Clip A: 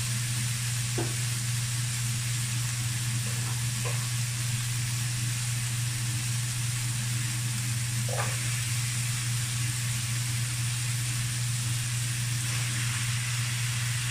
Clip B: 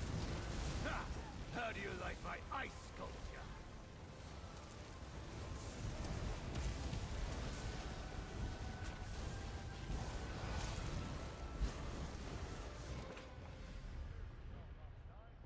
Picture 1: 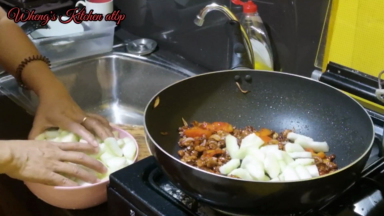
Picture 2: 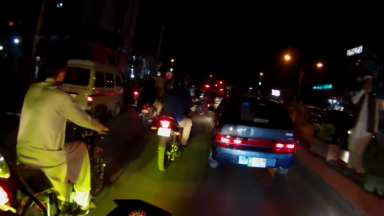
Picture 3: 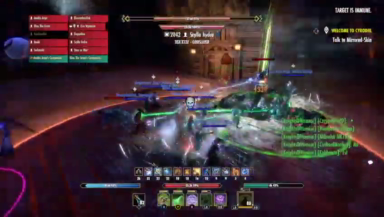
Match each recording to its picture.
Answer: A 1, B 3